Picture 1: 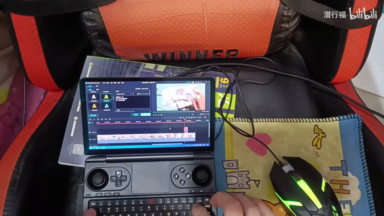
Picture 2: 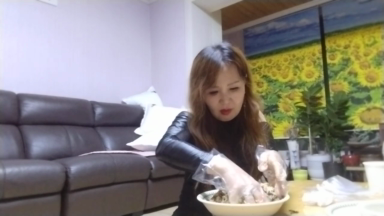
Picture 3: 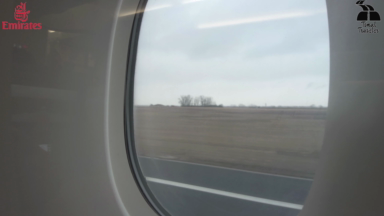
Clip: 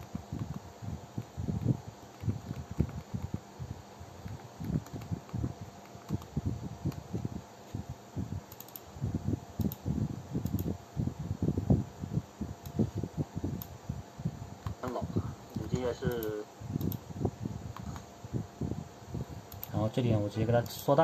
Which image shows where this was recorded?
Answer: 1